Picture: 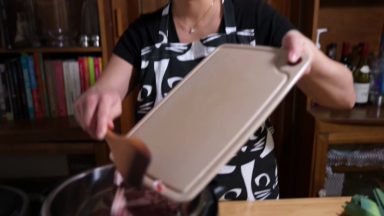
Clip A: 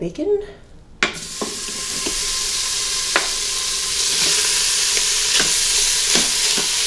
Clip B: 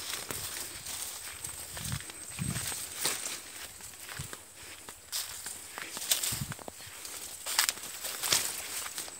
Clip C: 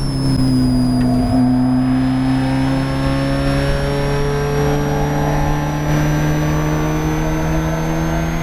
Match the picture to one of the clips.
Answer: A